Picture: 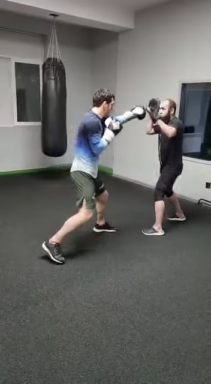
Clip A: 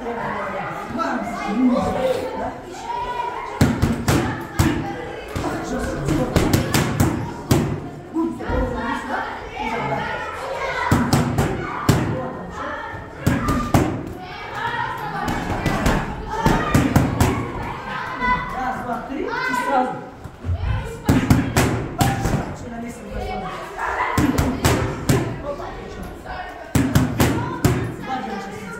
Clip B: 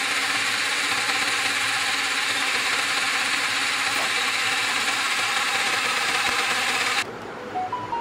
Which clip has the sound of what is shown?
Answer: A